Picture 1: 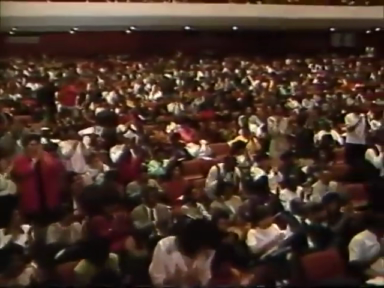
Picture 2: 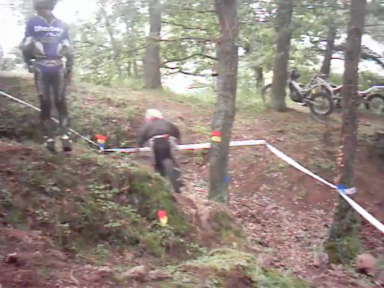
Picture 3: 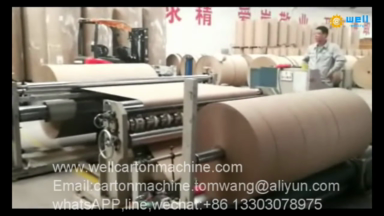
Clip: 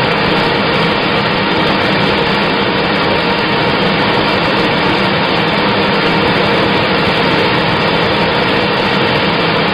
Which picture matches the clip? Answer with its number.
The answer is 3